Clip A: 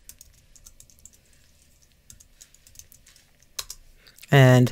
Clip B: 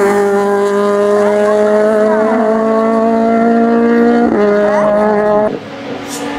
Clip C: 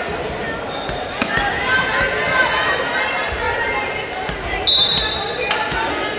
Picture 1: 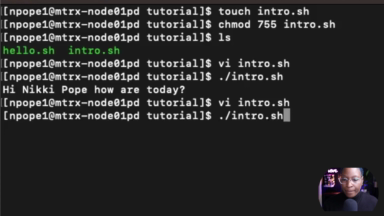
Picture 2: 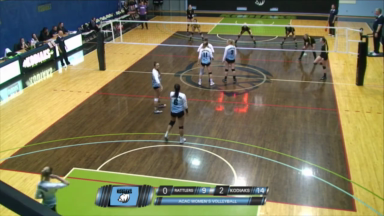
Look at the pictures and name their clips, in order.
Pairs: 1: A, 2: C